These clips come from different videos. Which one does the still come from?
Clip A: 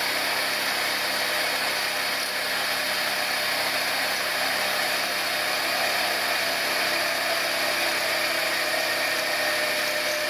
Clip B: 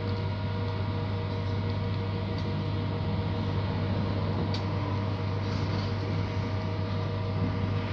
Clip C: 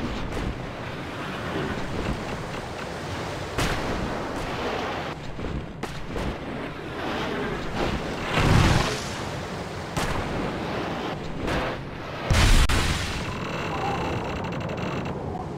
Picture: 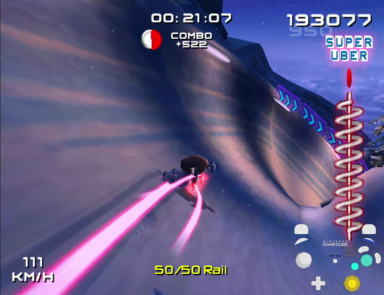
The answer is C